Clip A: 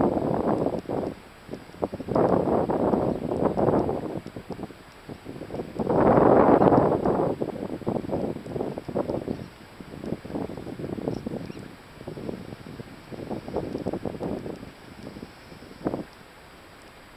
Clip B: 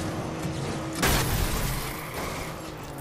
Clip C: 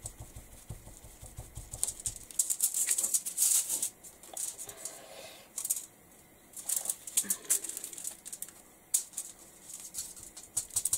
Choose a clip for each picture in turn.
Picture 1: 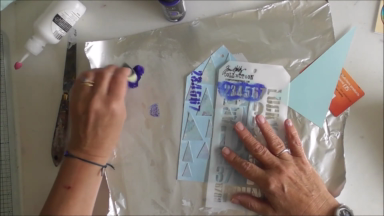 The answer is C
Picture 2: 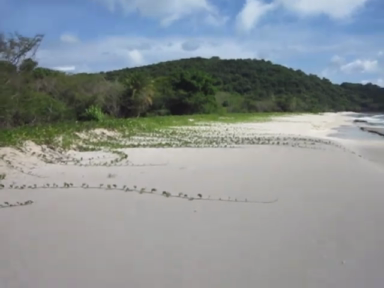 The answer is A